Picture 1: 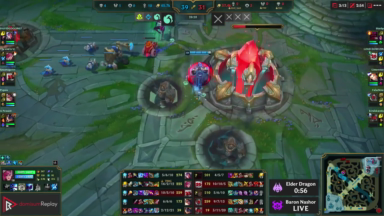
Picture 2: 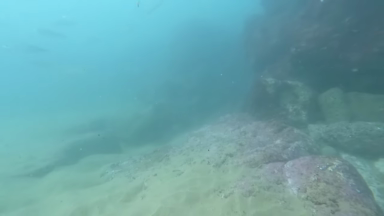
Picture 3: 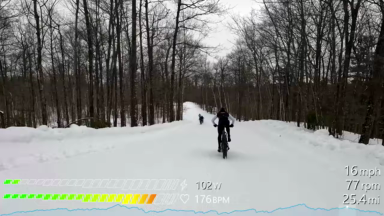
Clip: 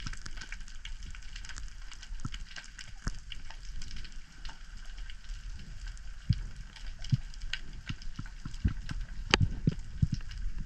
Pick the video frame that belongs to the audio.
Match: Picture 2